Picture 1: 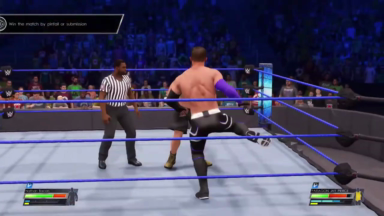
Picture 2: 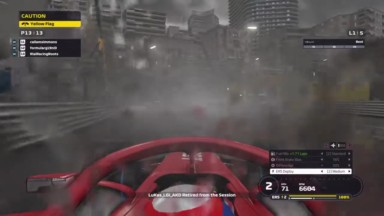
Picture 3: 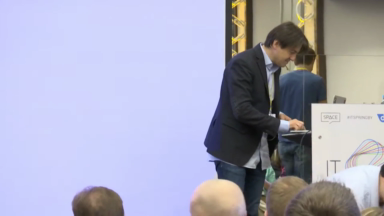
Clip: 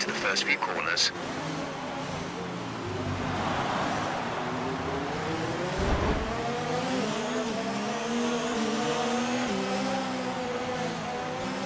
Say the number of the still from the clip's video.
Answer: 2